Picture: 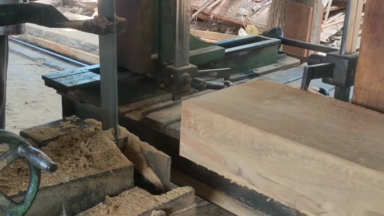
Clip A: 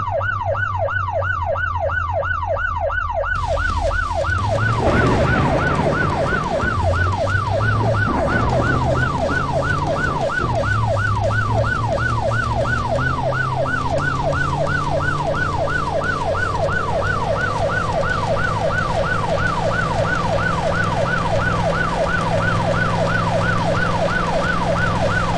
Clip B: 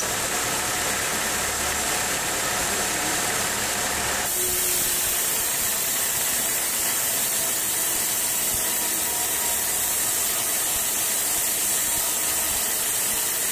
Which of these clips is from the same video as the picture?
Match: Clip B